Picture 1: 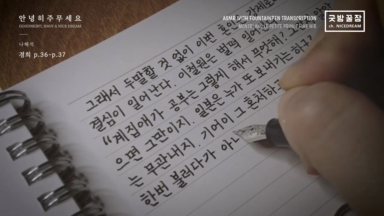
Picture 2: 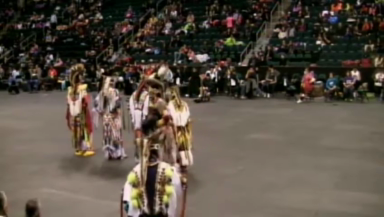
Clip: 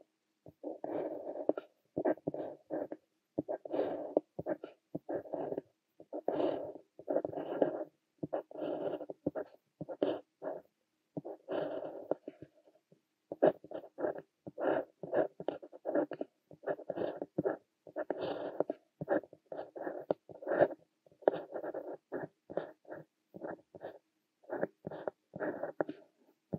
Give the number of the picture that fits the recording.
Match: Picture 1